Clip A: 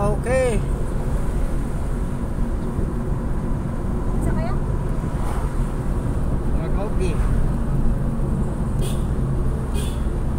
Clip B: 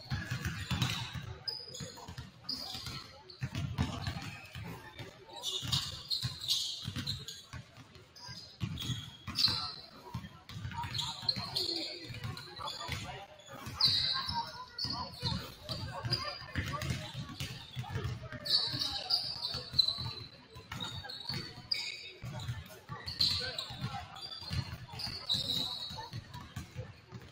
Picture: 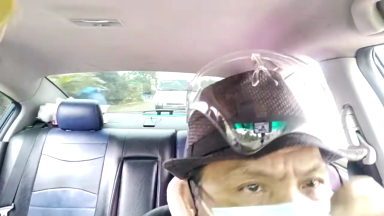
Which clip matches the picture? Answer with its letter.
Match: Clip A